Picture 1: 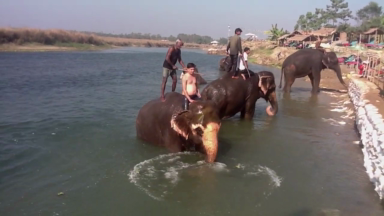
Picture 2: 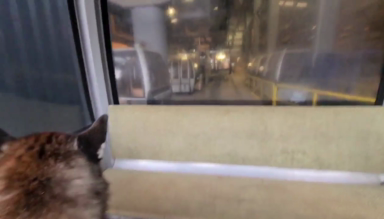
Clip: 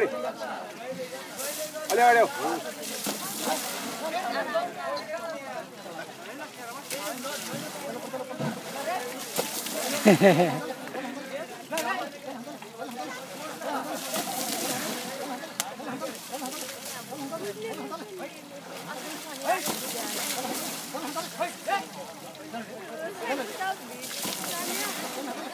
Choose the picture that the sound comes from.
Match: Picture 1